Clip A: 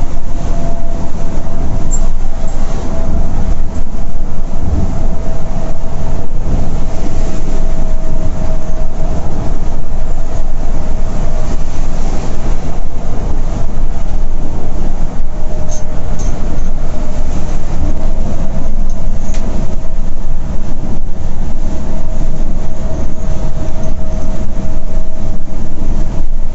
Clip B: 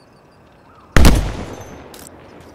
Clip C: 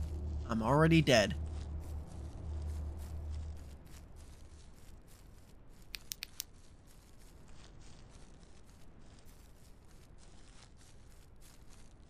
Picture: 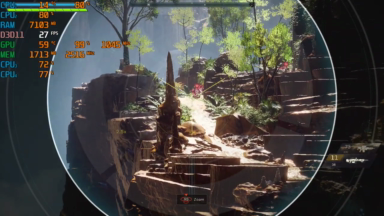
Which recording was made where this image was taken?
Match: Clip B